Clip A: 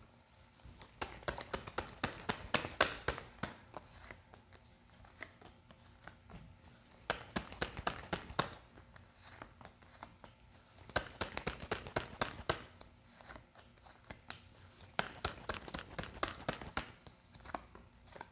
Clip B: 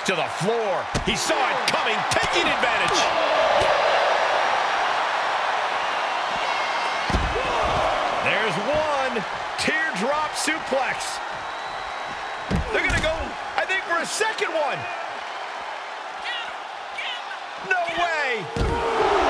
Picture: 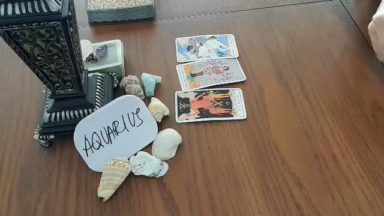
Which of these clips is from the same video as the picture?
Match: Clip A